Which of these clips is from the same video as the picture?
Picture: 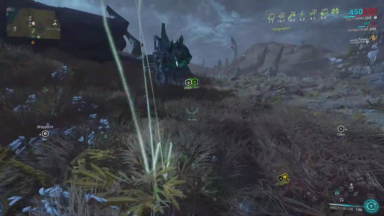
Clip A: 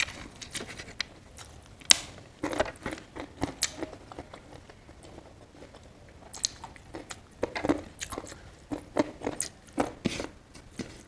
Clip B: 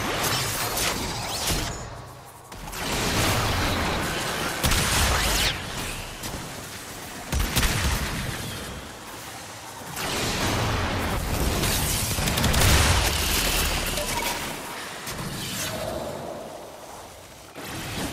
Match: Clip B